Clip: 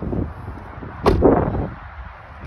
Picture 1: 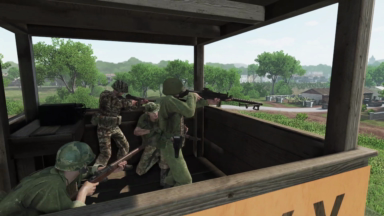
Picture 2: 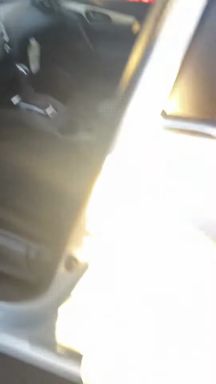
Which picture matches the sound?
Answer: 2